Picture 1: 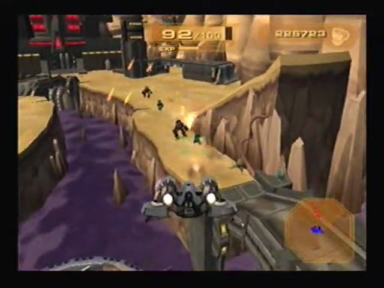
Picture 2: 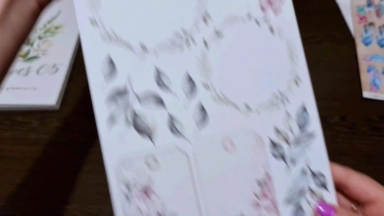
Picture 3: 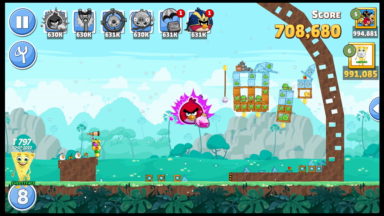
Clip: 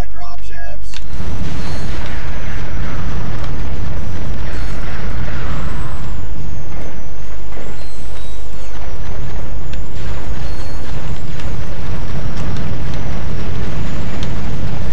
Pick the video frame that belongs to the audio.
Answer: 1